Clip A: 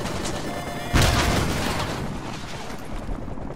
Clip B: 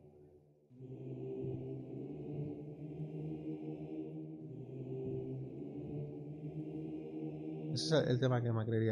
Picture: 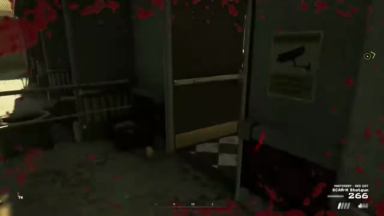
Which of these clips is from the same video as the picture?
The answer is A